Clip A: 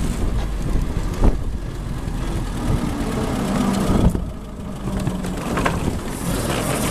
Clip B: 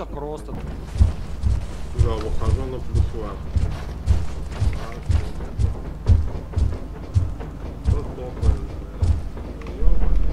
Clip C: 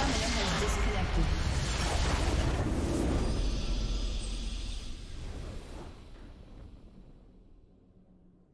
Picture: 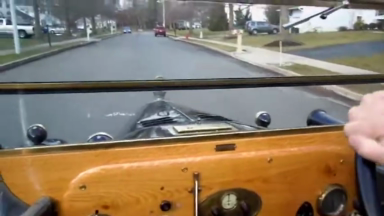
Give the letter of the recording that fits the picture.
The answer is A